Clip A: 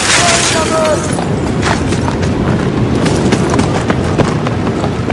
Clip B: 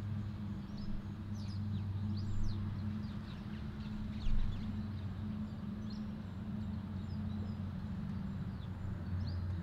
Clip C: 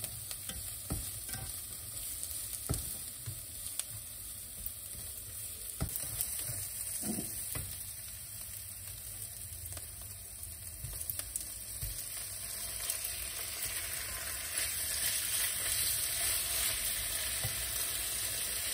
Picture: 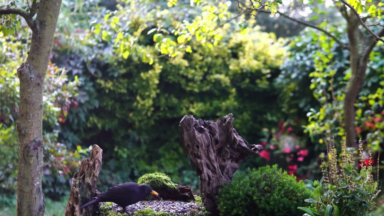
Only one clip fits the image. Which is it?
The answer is B